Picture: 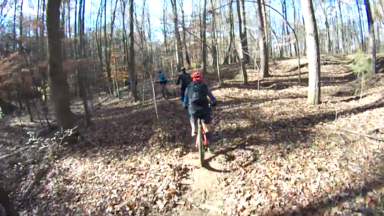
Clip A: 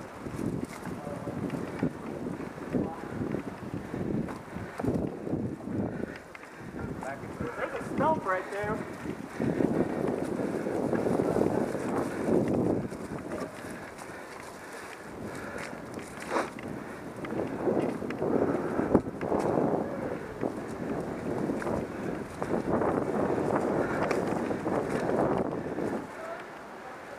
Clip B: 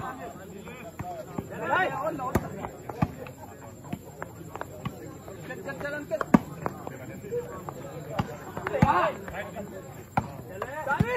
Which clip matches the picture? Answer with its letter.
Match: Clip A